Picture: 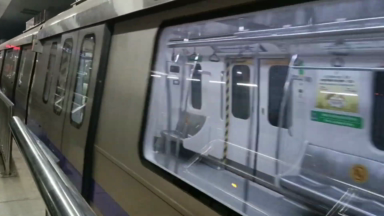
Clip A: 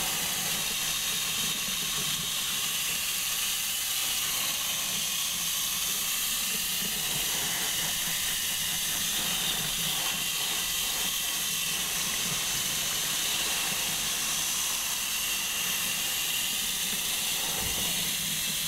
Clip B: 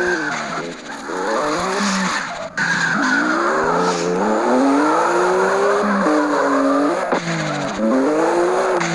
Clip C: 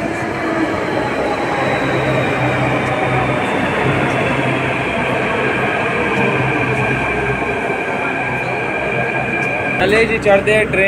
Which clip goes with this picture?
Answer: C